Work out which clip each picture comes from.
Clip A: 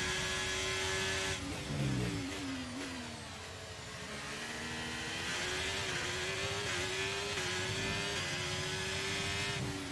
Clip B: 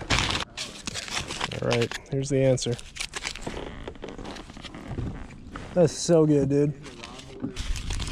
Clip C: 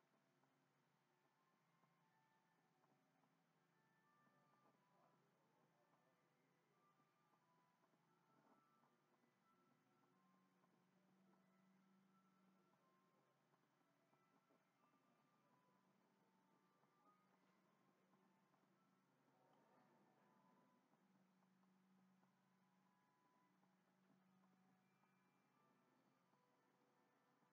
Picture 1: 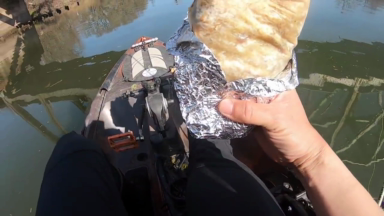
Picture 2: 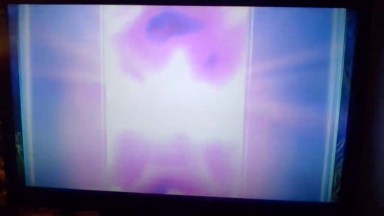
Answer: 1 B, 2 C